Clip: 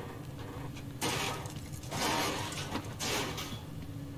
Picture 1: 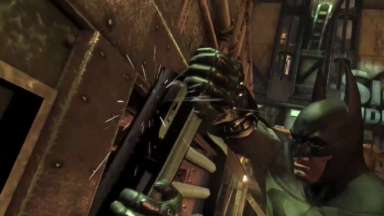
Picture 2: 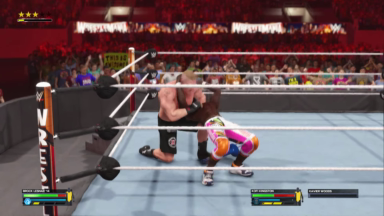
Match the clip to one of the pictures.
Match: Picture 1